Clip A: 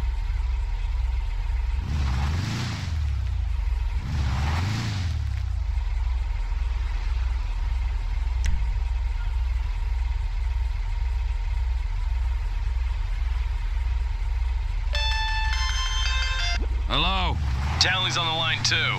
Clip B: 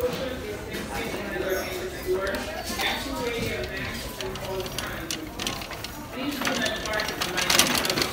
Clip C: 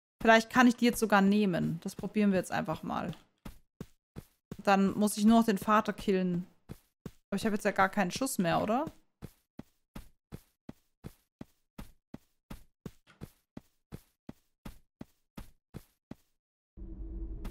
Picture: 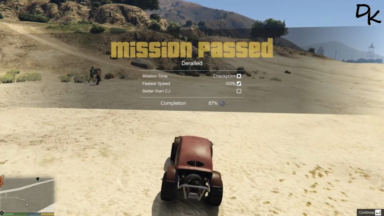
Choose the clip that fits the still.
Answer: A